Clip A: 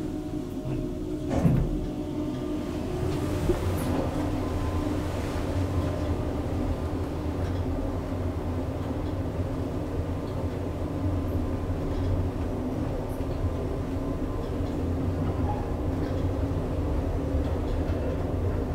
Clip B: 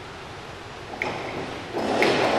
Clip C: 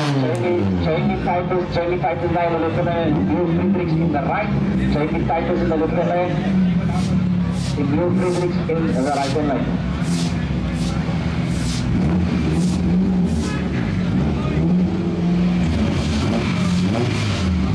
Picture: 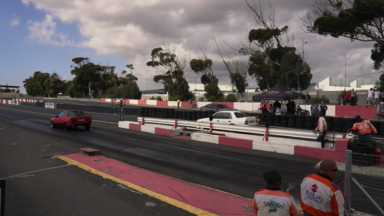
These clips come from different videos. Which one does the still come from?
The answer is C